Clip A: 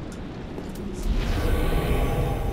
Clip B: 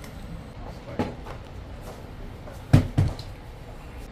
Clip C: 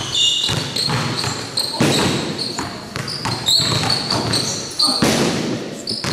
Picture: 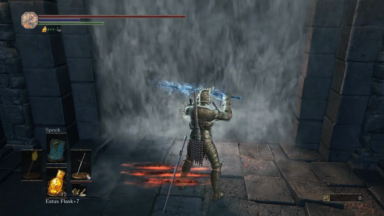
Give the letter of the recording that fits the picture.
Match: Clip A